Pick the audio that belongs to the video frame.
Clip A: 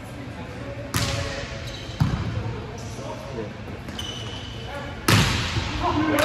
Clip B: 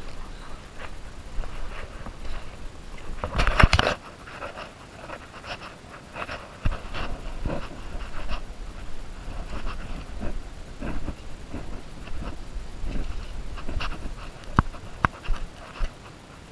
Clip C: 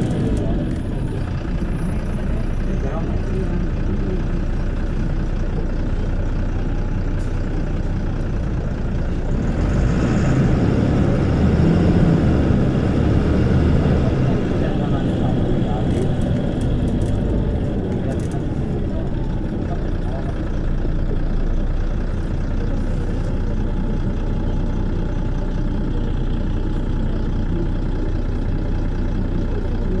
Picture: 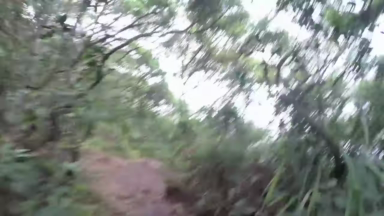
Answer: B